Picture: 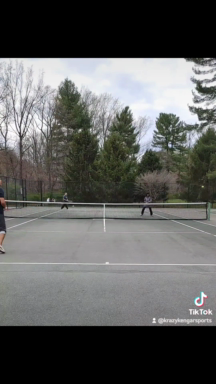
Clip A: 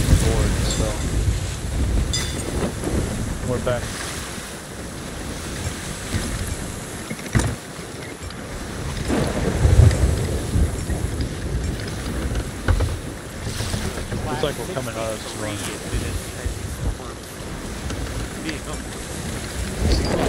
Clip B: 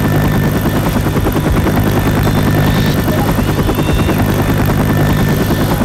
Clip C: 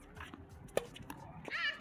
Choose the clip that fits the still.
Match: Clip C